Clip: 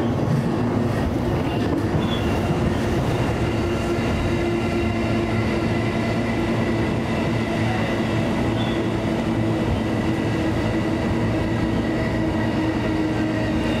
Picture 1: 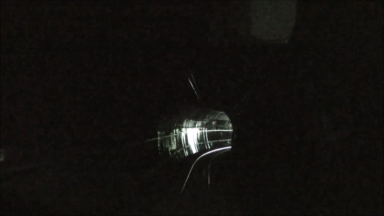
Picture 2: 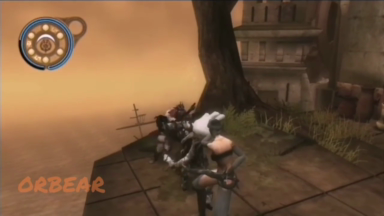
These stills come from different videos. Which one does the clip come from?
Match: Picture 1